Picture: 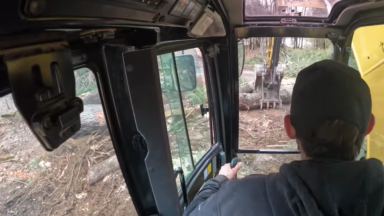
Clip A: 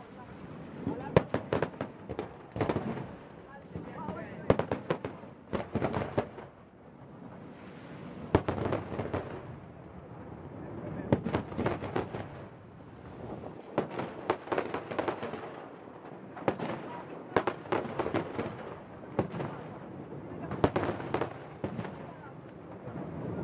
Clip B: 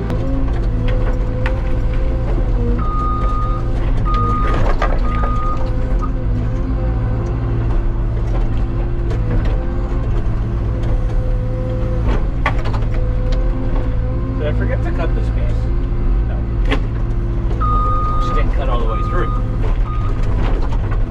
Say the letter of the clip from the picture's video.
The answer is B